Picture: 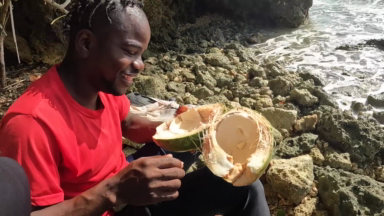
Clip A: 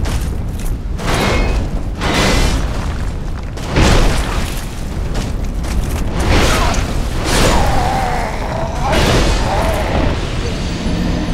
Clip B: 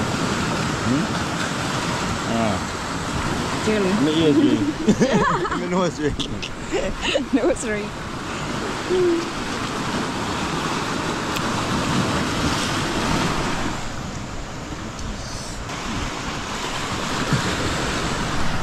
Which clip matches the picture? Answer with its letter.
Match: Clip B